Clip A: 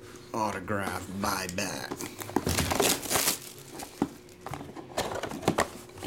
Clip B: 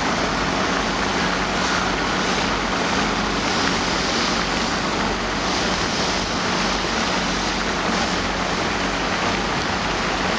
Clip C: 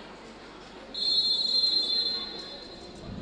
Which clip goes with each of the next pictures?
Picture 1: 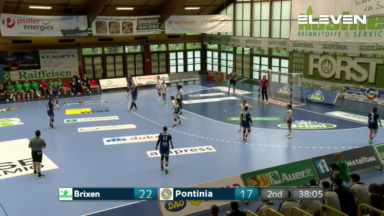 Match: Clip C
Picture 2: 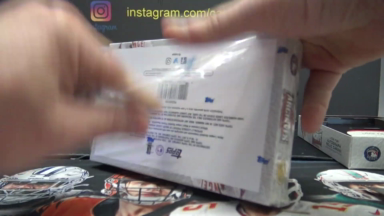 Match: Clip A